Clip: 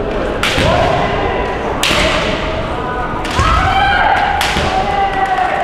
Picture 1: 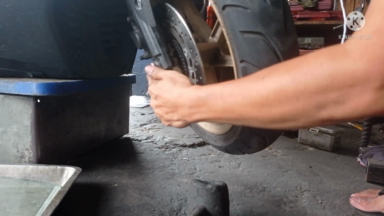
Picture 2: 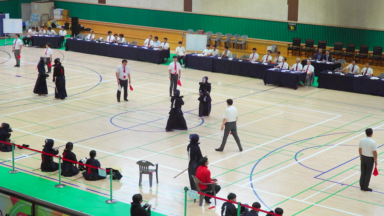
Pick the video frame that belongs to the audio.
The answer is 2